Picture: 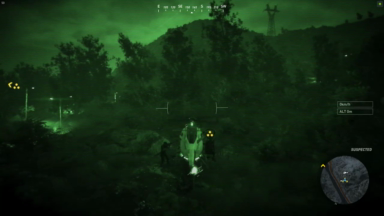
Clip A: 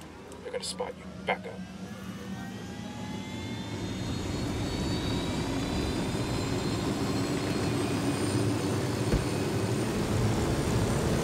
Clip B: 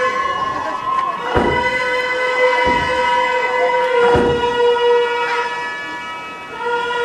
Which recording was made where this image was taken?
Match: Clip A